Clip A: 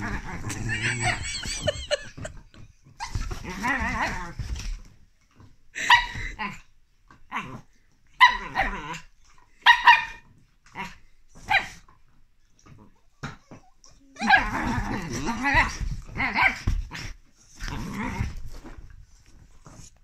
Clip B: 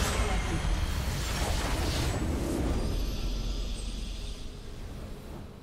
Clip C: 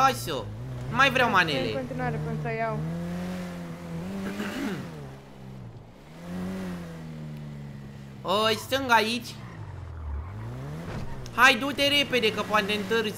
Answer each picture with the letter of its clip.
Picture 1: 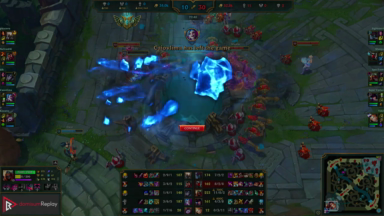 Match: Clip B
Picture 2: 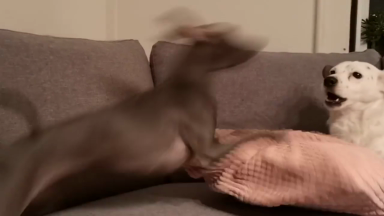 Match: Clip A